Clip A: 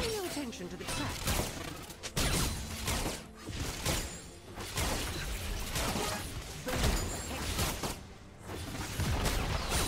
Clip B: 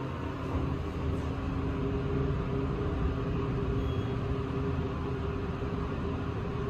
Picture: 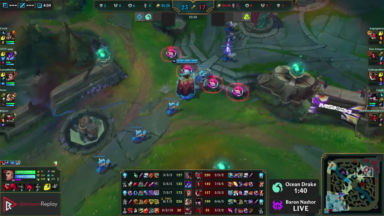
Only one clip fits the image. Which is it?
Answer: A